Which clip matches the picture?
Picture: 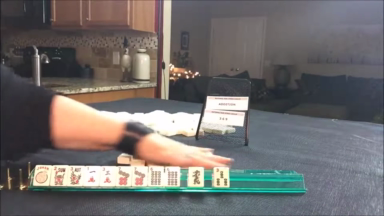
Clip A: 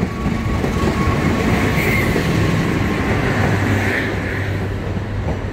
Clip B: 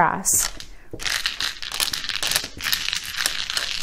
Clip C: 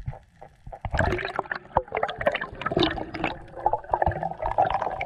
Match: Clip B